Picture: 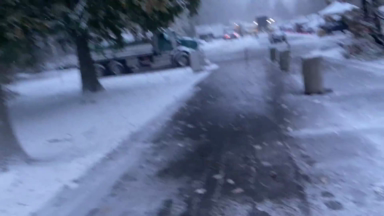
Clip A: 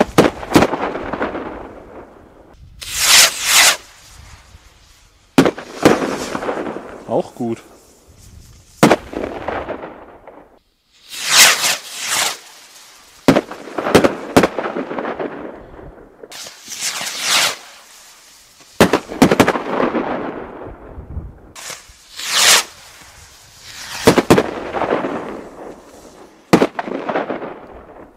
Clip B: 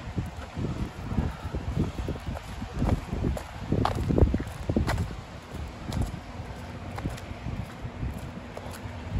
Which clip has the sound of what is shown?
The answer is B